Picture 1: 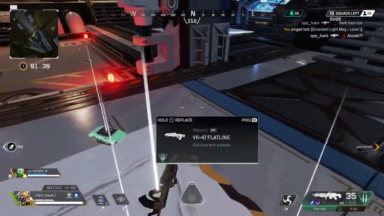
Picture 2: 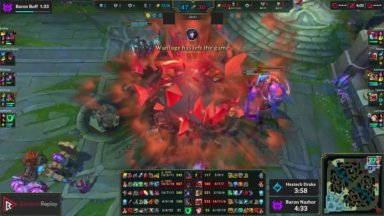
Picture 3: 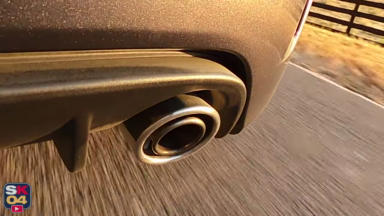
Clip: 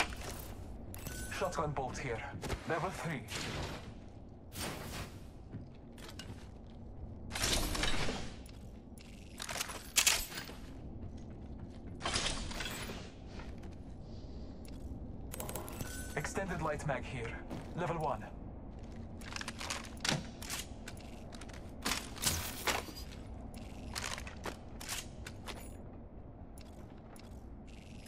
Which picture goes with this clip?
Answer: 1